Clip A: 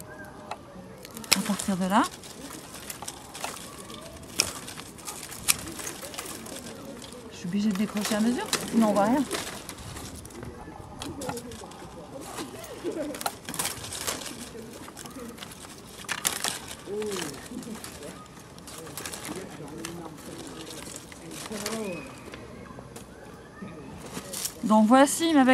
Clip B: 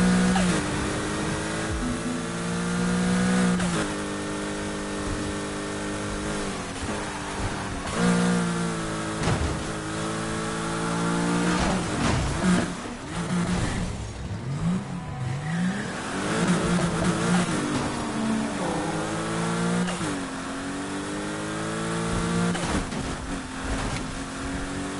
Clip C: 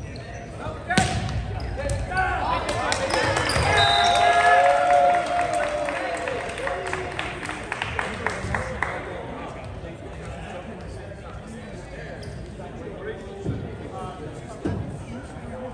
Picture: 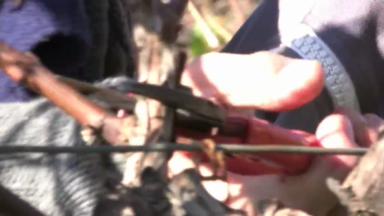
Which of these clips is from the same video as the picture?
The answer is A